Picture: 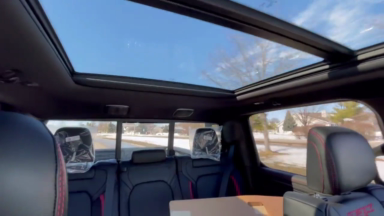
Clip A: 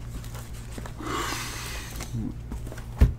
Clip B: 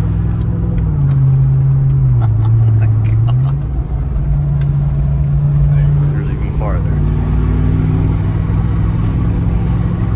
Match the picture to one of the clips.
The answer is B